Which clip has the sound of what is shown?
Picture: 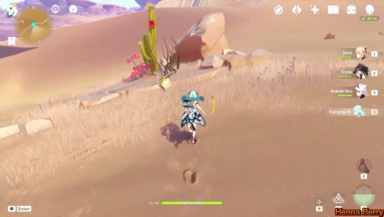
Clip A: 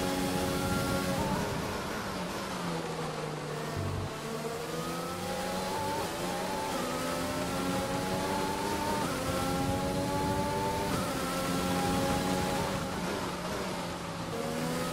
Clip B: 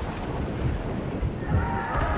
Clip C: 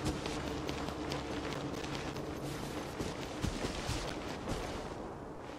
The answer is C